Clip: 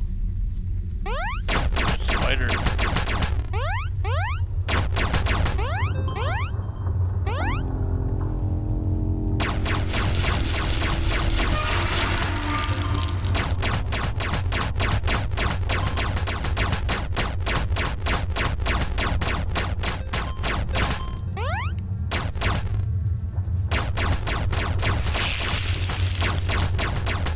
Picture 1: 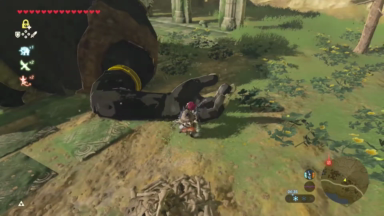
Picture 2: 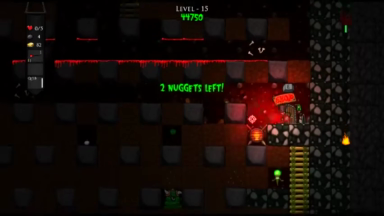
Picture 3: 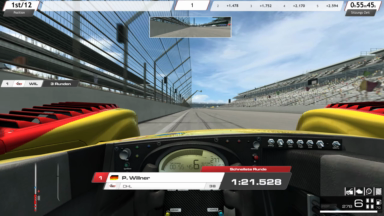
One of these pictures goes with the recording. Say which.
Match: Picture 2